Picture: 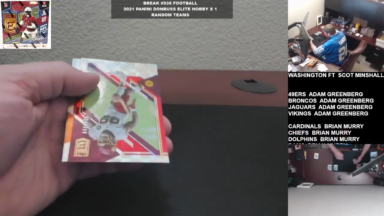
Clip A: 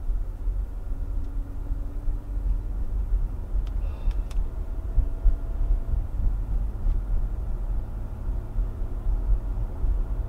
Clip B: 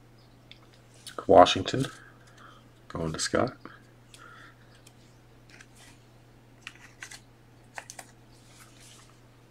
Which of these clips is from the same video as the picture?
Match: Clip B